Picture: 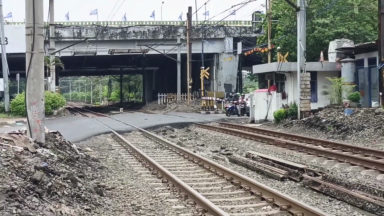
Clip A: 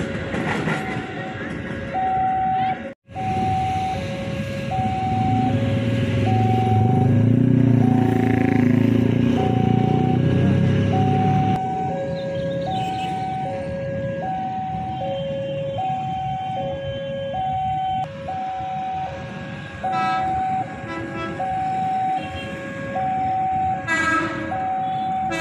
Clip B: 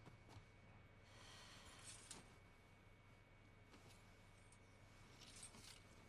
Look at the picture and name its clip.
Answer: A